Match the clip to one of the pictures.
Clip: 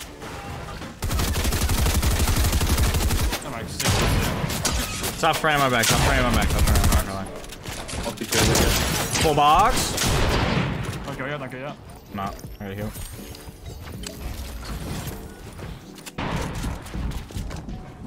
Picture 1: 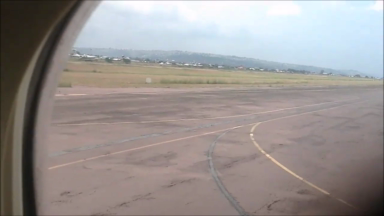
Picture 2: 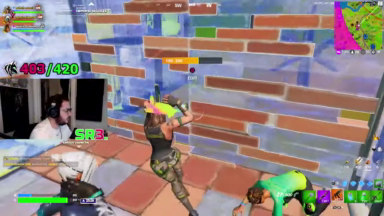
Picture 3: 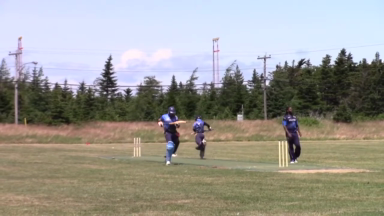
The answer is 2